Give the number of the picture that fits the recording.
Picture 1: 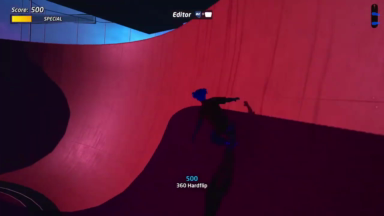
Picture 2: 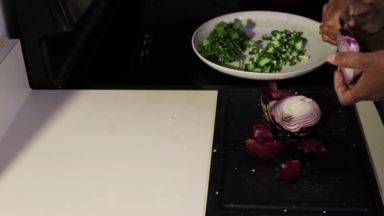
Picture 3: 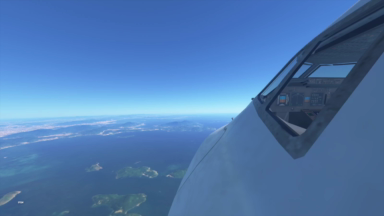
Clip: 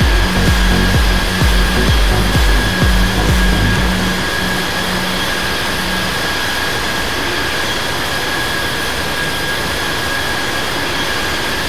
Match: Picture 3